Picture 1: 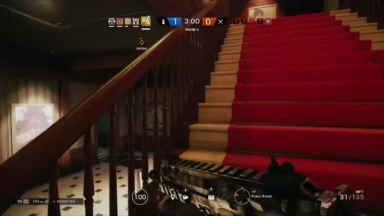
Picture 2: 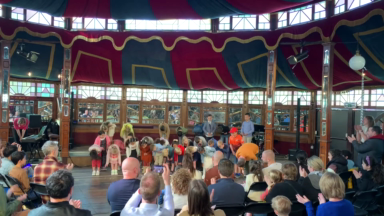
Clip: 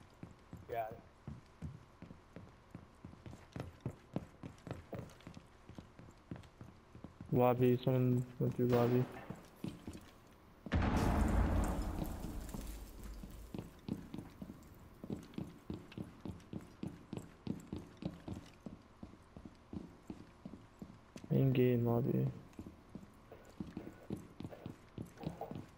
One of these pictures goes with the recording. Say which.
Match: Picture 1